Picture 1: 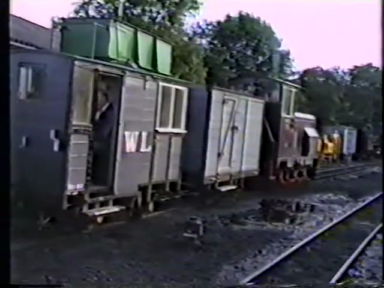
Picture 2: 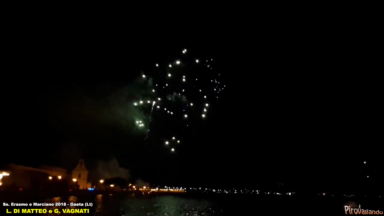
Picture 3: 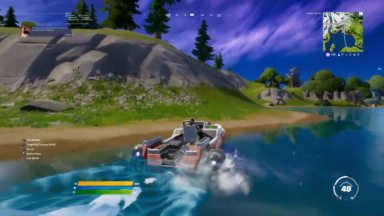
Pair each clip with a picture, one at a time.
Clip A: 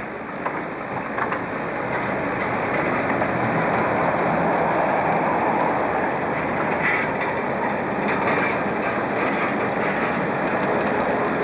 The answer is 1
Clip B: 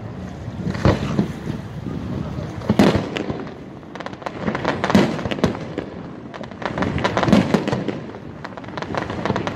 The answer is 2